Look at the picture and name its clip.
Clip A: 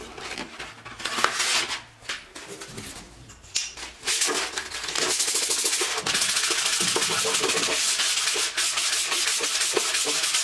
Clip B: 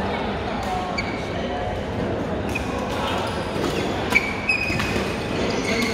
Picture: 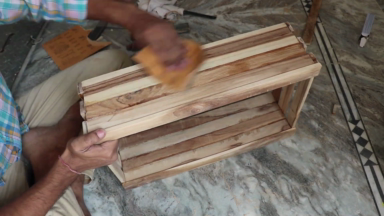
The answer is A